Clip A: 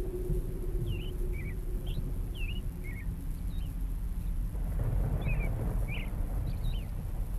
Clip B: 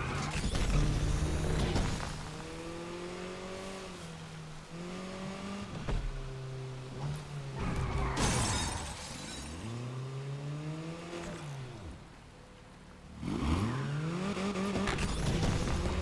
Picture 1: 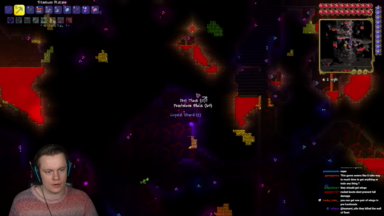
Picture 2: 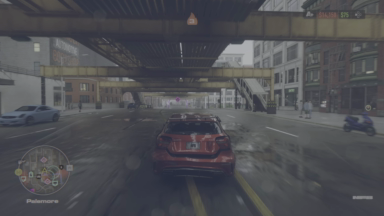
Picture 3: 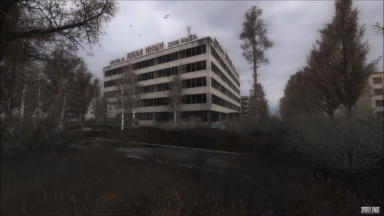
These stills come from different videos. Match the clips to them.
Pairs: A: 3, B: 2